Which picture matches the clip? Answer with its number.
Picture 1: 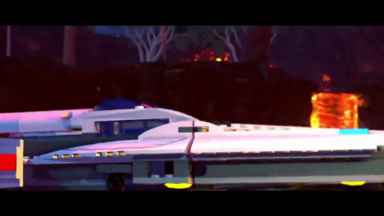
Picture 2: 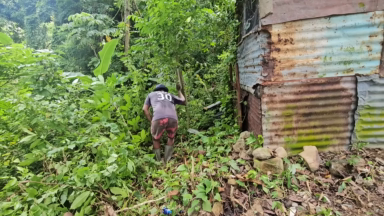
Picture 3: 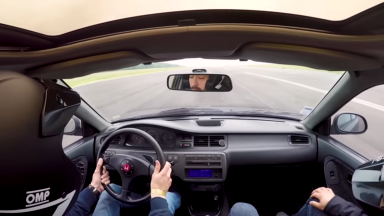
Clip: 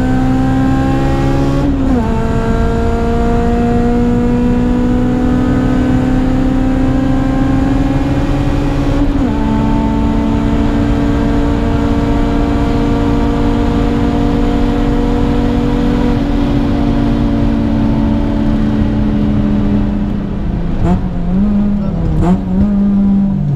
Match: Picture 3